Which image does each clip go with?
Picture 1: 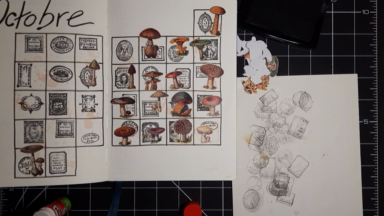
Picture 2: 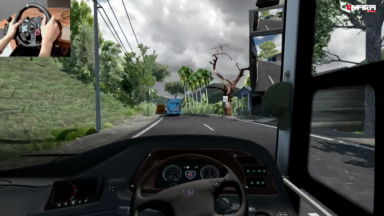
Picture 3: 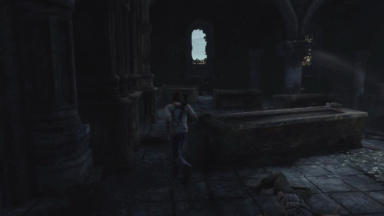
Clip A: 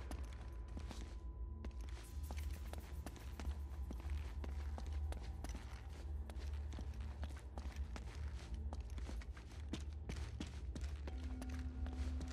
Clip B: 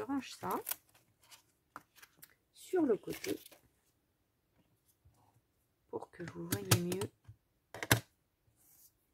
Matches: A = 3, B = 1